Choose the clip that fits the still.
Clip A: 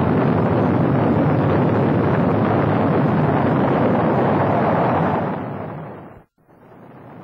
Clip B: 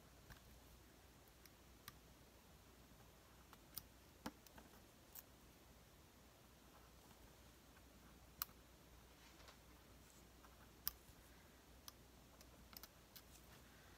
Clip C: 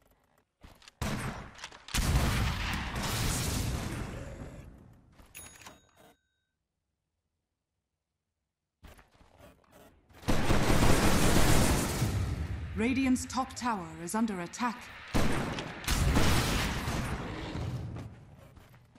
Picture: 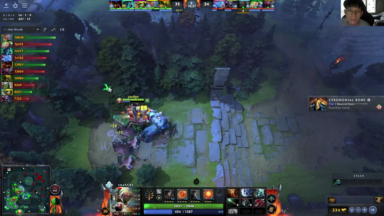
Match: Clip C